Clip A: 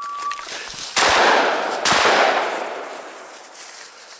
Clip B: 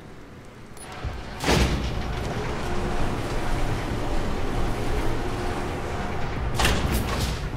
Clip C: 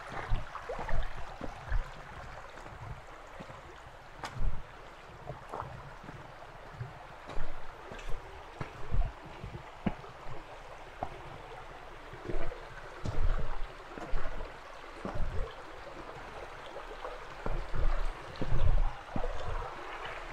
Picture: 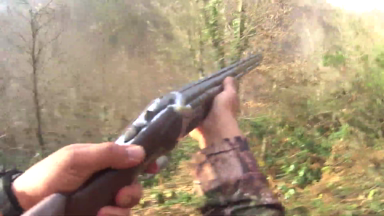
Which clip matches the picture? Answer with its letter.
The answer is A